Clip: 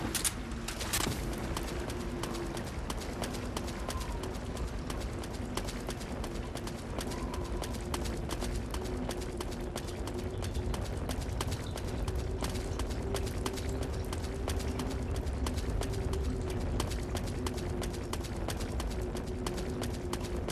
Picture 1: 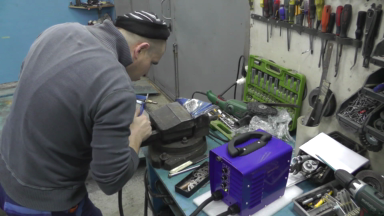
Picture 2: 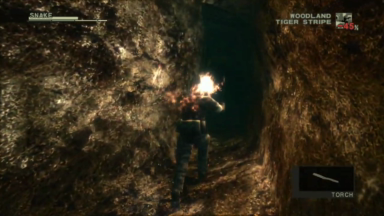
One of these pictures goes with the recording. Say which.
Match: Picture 2